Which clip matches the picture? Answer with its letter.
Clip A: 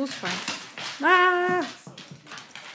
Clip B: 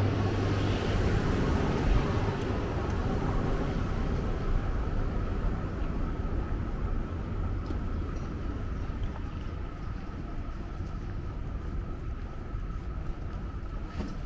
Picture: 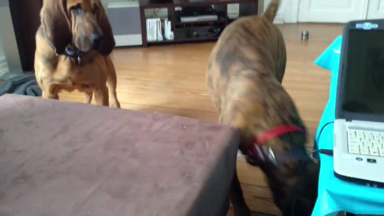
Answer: A